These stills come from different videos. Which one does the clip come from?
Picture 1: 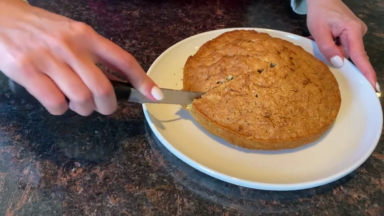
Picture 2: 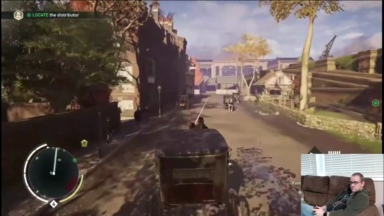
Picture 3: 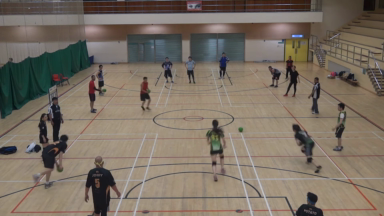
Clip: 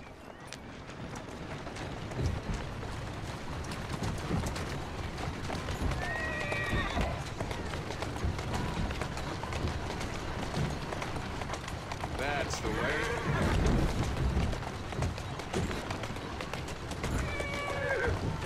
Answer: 2